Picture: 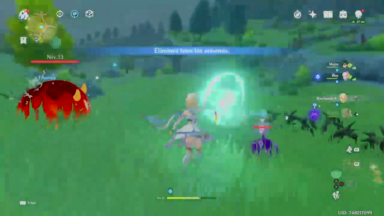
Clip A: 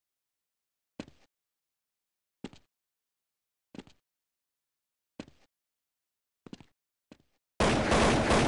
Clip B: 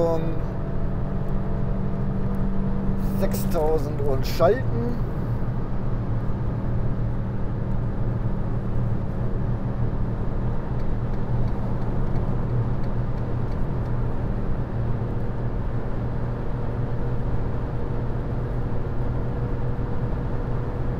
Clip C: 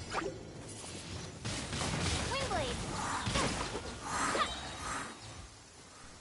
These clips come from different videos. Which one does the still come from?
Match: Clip C